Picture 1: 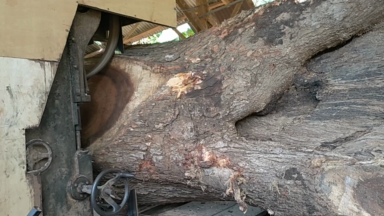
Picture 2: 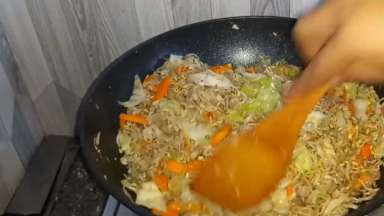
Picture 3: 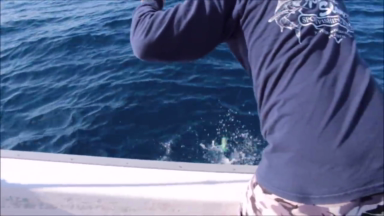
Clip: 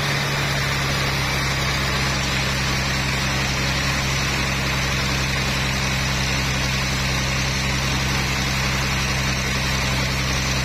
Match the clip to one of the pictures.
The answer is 1